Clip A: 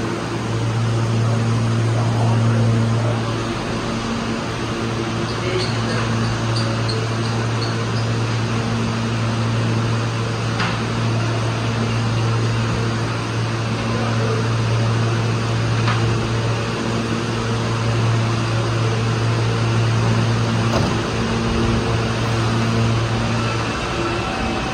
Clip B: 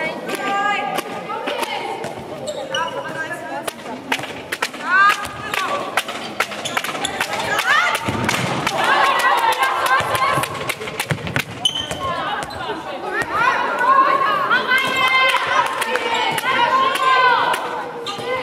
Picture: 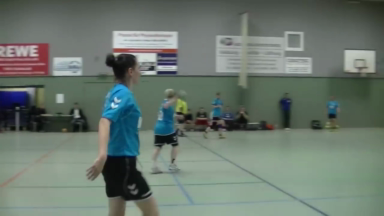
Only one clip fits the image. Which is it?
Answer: B